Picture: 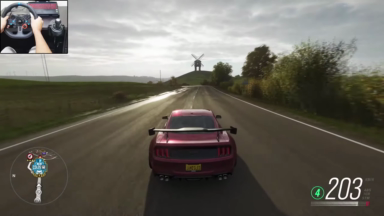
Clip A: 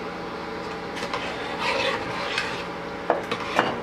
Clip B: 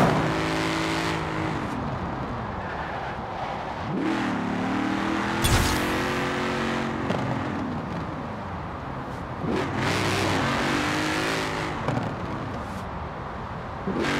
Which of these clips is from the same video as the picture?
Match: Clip B